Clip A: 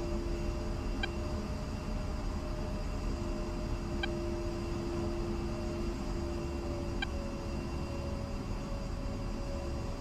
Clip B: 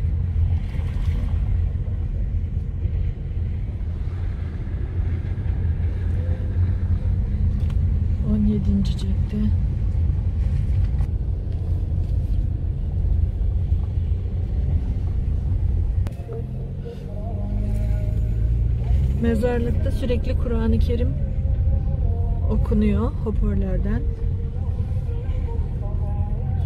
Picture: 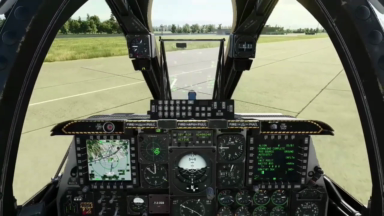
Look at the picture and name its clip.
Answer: A